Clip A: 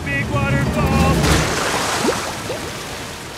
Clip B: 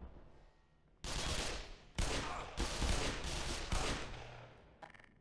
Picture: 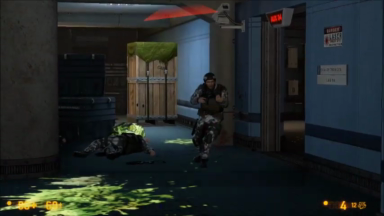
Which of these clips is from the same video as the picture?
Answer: B